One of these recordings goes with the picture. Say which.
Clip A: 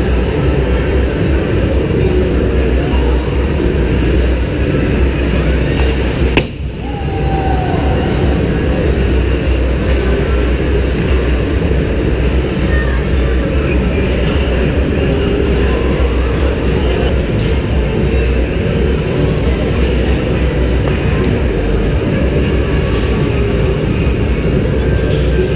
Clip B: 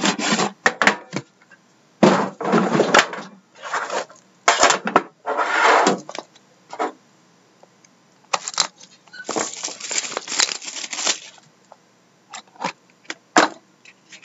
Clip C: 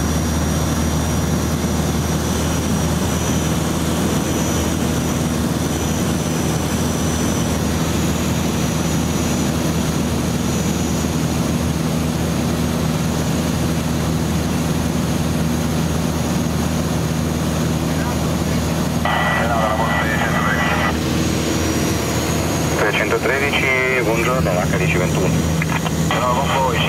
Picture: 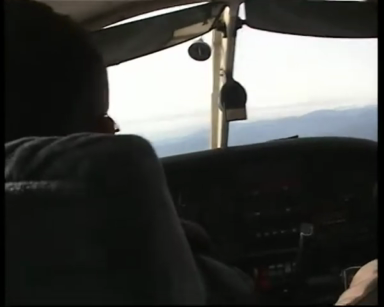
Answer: C